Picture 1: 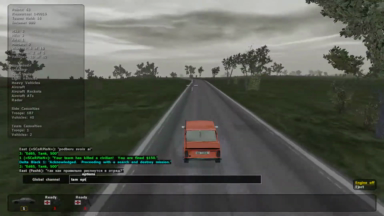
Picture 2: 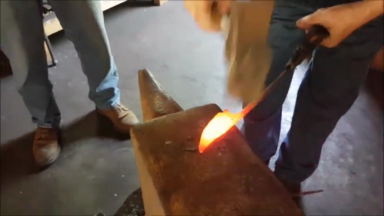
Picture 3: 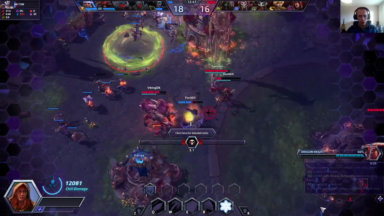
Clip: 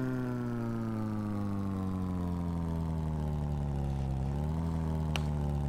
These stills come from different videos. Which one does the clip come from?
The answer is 1